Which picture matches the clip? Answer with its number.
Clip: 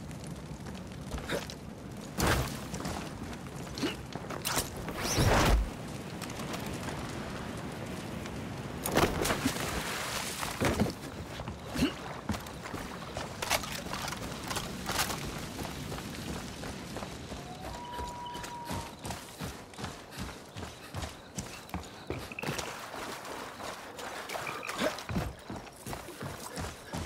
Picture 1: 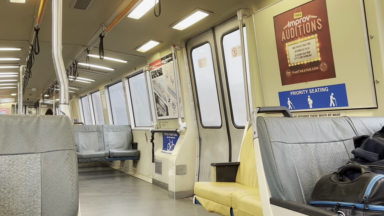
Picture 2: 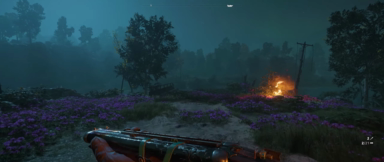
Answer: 2